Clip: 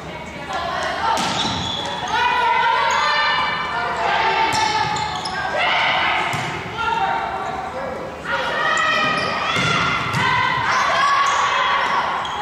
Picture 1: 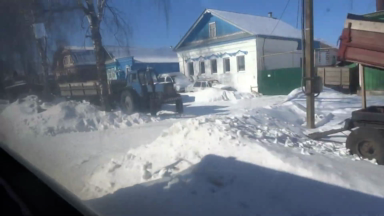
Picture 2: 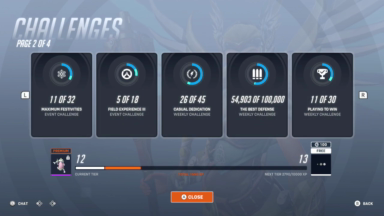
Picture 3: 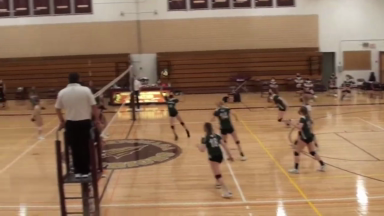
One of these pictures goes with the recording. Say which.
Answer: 3